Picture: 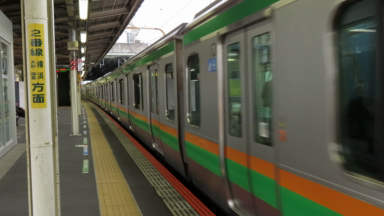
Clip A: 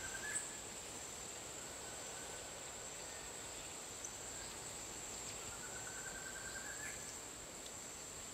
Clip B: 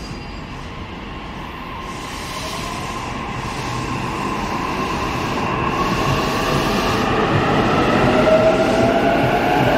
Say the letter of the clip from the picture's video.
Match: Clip B